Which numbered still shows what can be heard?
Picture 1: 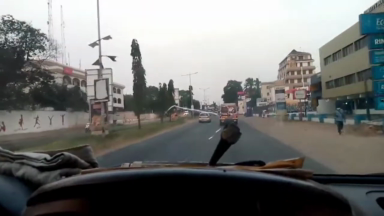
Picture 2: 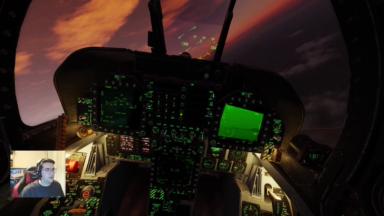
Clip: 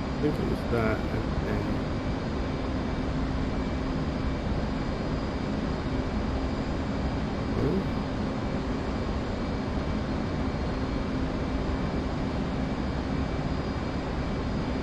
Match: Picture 2